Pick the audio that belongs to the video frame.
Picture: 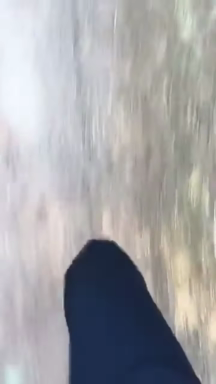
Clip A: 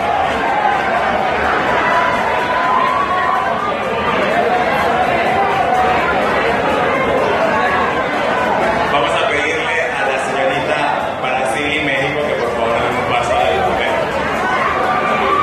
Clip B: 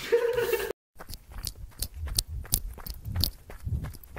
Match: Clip B